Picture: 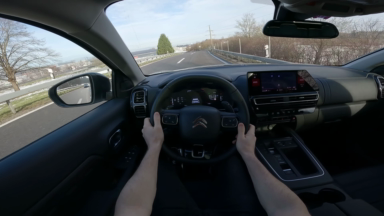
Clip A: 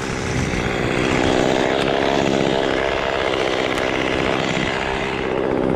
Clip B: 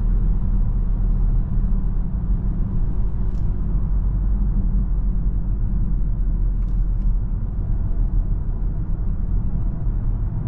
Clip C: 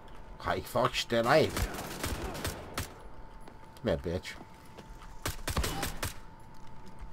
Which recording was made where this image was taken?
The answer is B